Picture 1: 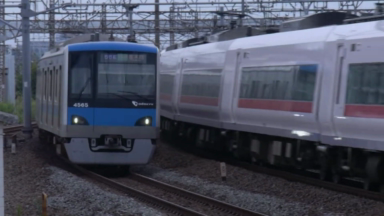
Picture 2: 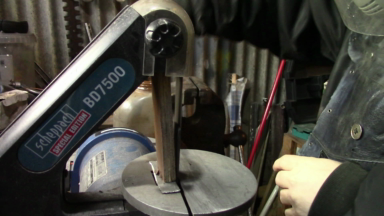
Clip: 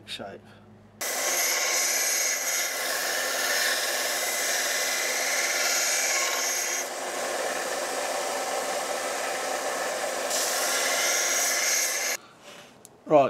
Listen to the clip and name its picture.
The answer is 2